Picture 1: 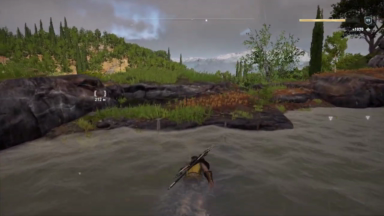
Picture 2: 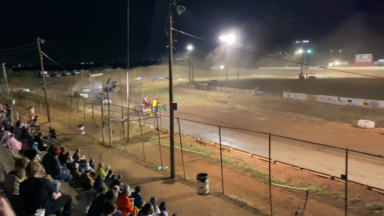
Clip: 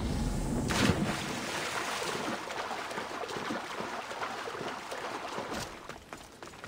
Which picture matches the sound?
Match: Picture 1